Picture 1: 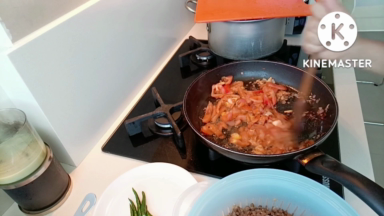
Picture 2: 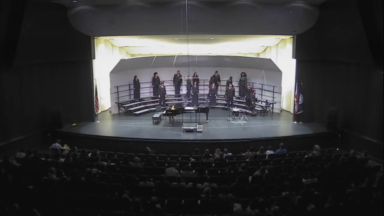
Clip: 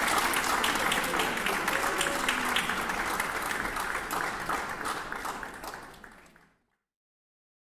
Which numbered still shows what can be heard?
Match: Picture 2